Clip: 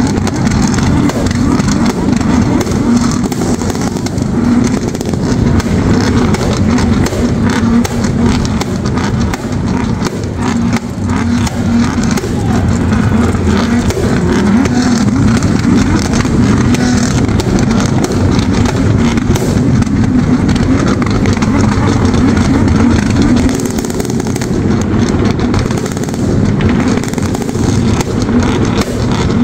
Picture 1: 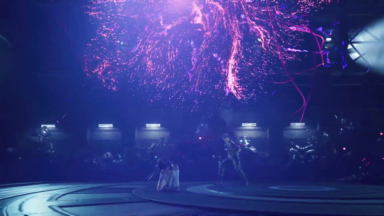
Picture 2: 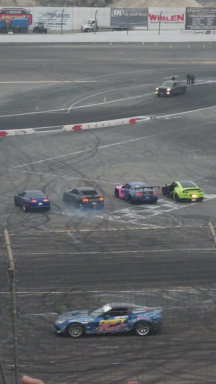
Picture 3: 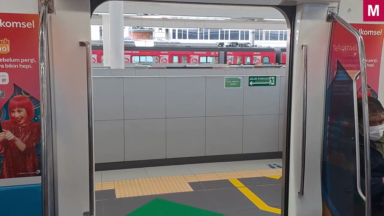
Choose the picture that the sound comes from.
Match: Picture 2